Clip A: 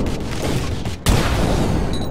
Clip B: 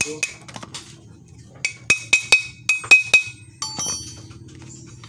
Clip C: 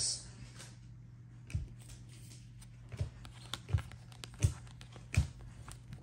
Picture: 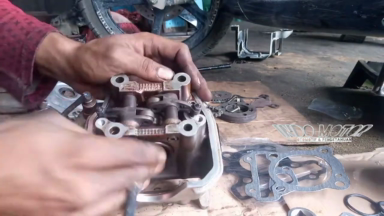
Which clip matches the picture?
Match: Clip B